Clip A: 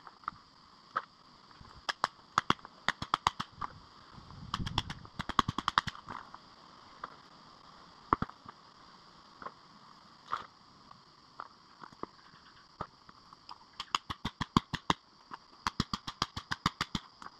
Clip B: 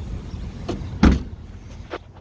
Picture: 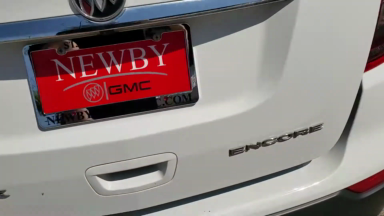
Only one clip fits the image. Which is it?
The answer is B